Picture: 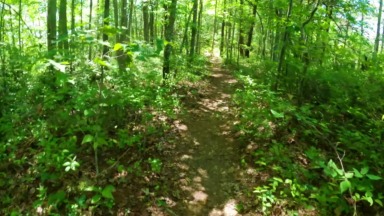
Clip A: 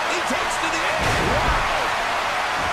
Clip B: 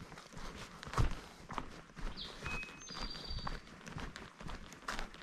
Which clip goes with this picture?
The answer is B